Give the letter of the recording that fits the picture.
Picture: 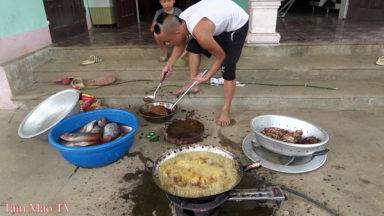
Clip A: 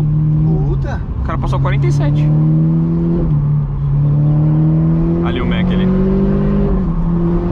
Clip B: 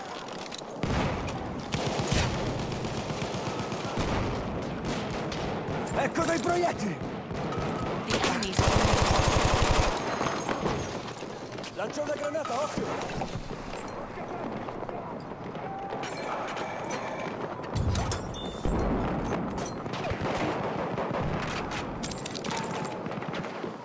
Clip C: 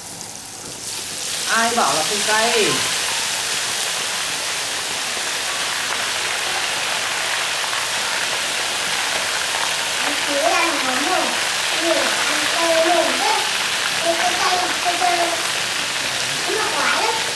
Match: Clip C